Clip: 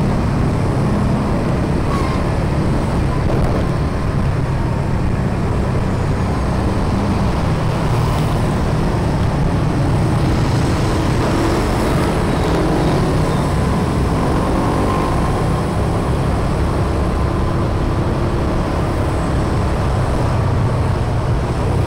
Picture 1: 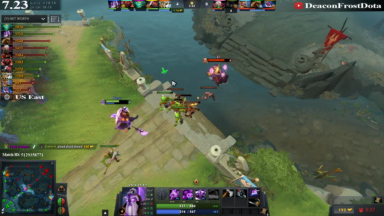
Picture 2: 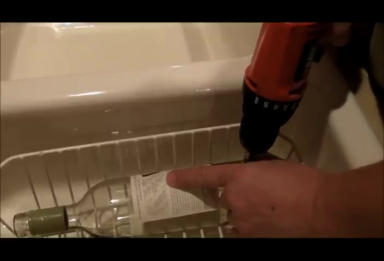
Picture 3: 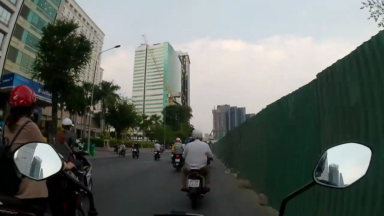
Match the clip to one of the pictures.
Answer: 3